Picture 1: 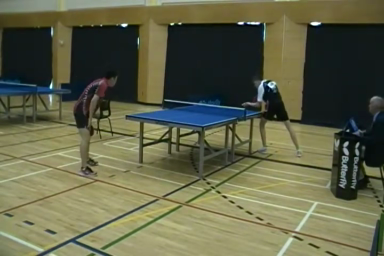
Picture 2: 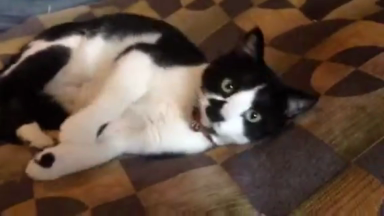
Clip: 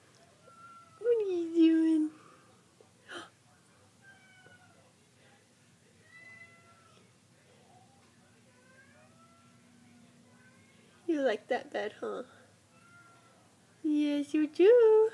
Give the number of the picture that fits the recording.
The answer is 2